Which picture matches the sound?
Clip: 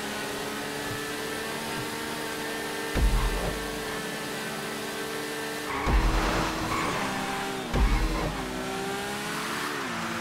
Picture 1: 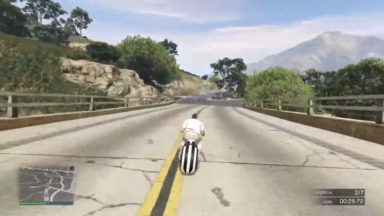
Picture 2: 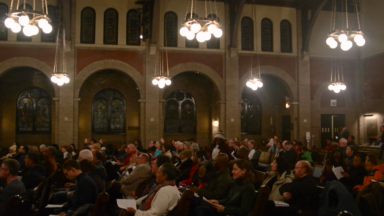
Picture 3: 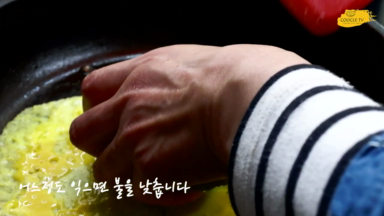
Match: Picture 1